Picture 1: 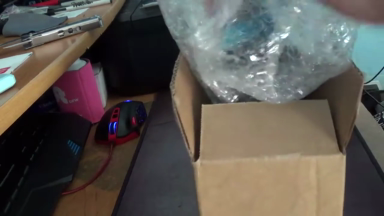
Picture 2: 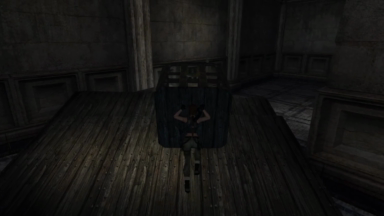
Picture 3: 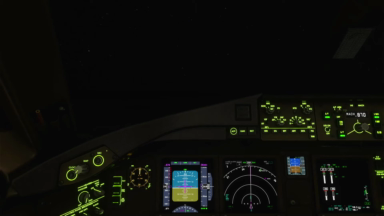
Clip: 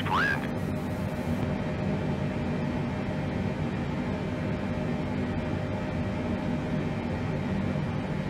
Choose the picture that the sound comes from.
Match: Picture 3